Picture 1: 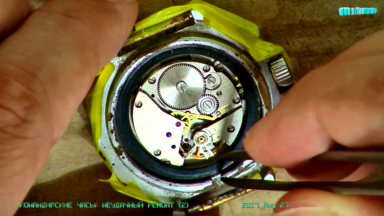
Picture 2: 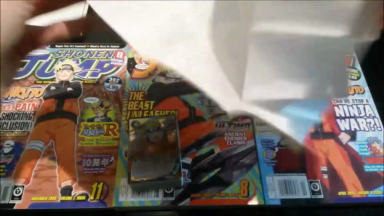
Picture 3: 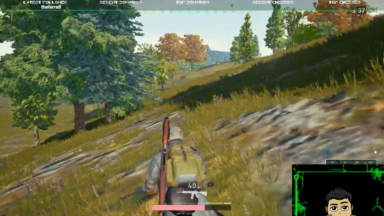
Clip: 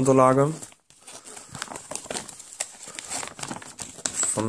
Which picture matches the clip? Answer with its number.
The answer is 2